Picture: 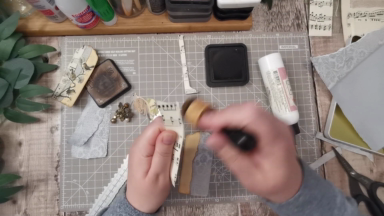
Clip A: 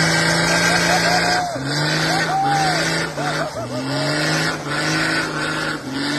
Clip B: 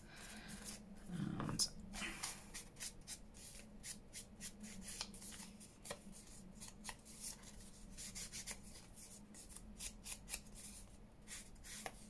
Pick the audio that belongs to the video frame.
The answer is B